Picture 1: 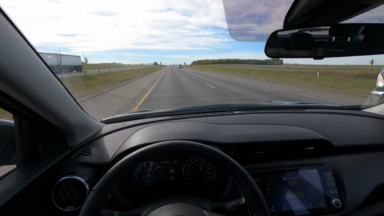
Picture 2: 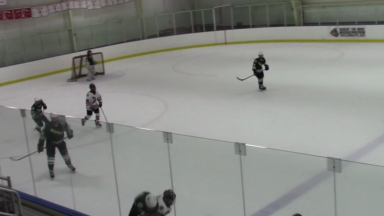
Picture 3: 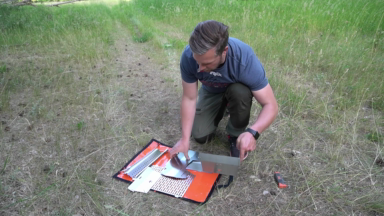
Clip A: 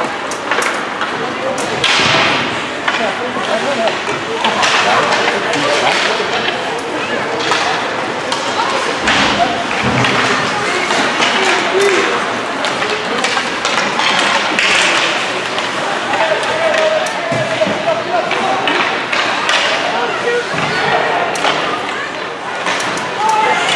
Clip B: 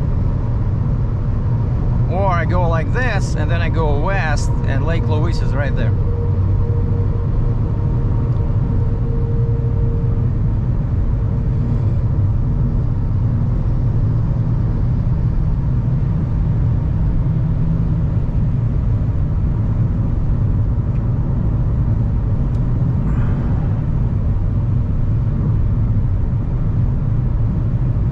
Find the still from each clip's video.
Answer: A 2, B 1